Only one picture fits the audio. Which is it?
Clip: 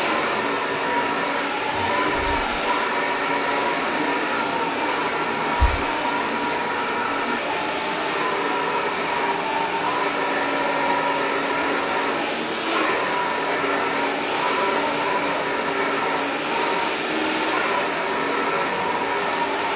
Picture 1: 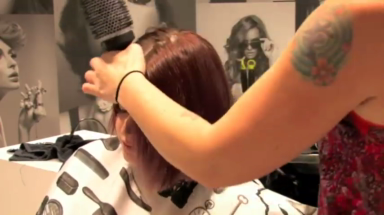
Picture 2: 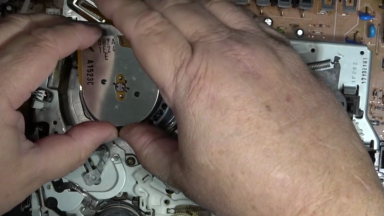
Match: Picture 1